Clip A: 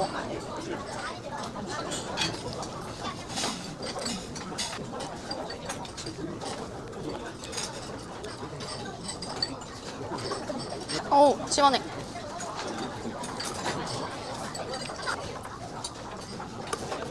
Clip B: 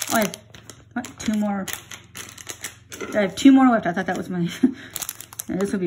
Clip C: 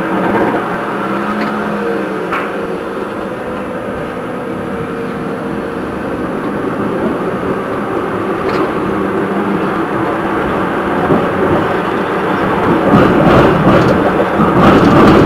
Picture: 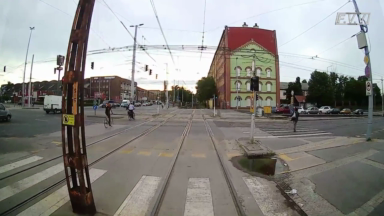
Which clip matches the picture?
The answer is C